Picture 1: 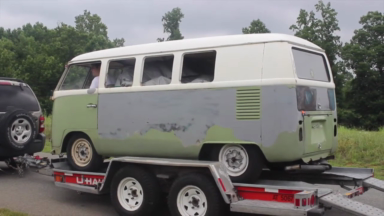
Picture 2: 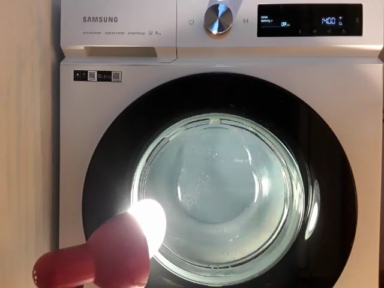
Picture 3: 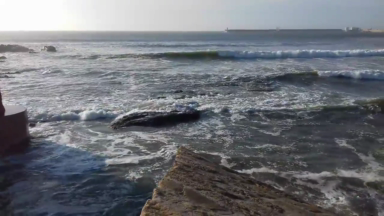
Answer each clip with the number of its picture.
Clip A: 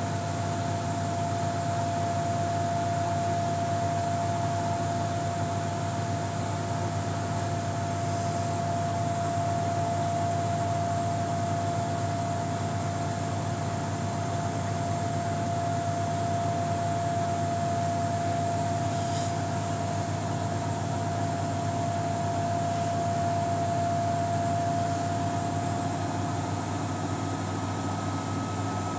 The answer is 2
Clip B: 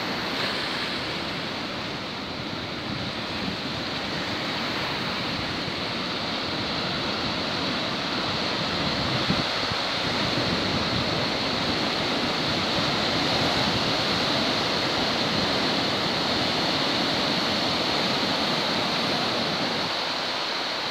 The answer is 3